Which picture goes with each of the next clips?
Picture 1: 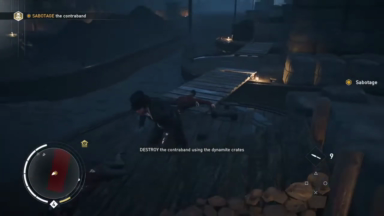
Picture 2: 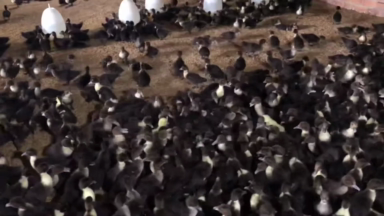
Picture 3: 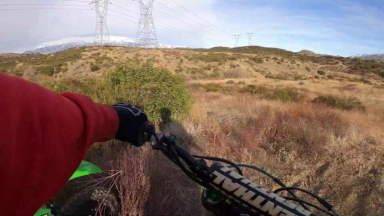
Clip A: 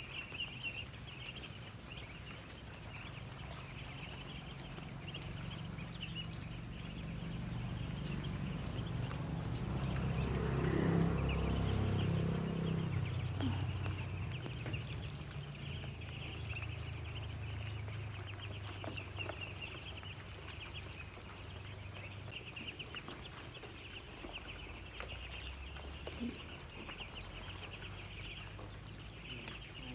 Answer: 2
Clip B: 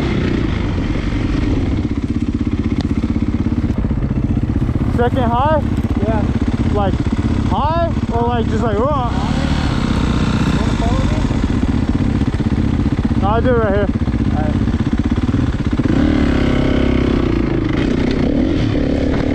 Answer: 3